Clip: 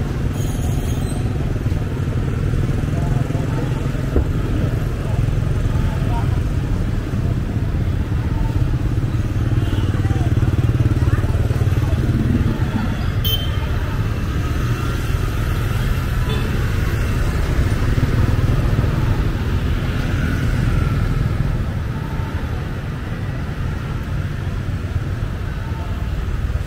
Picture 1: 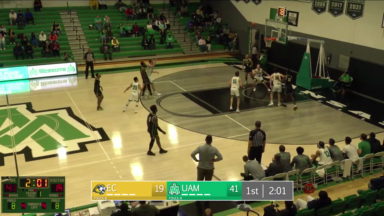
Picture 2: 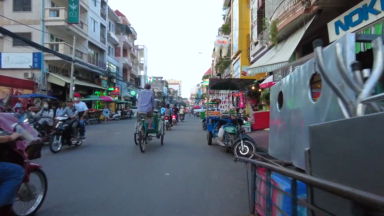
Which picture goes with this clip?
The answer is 2